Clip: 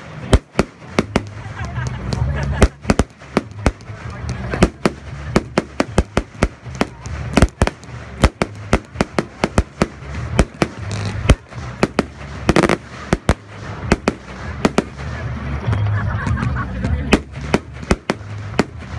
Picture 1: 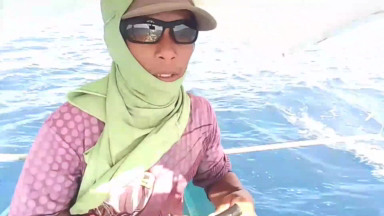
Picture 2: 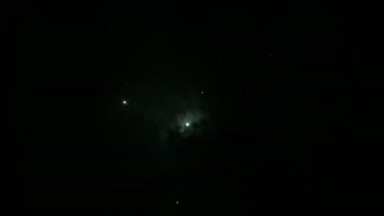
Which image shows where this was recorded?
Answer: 2